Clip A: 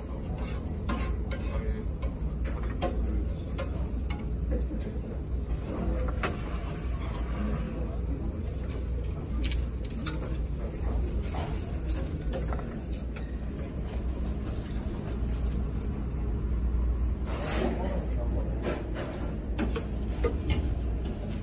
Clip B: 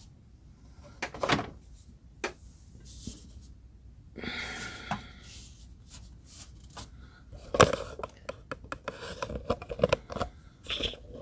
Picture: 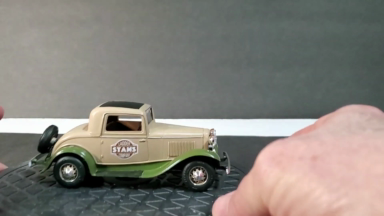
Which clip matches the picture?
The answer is B